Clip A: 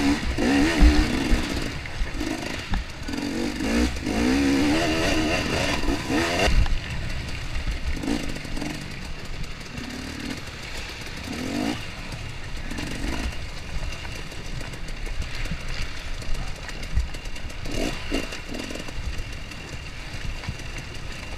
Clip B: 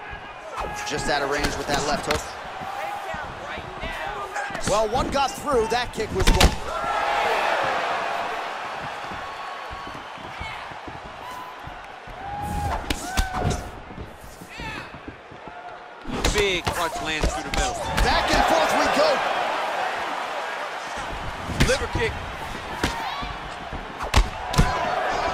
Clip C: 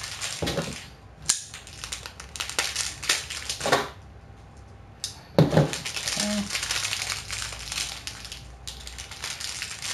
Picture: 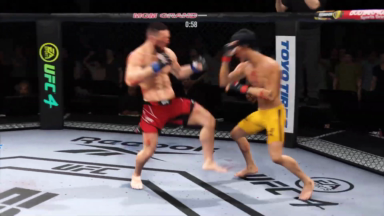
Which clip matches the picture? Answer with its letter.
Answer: B